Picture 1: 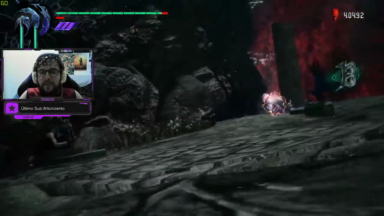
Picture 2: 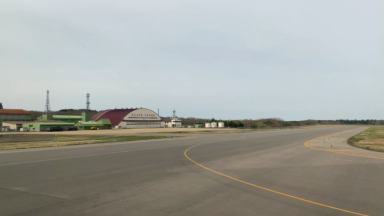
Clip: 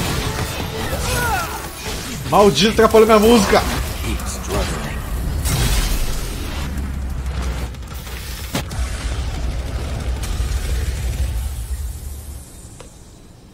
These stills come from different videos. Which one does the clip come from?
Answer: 1